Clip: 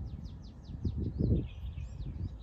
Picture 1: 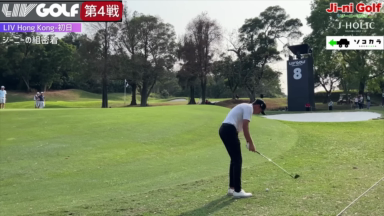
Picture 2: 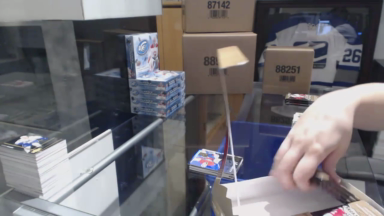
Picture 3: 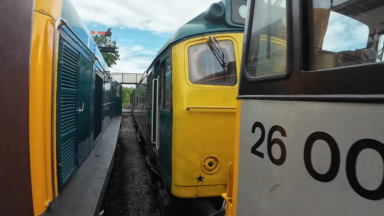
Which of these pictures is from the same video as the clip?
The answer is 1